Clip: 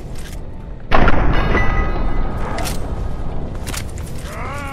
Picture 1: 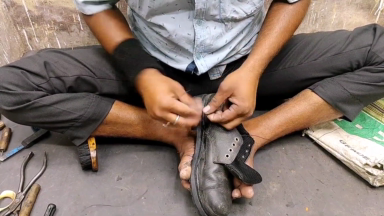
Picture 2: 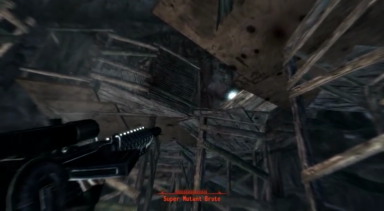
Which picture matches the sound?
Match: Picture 2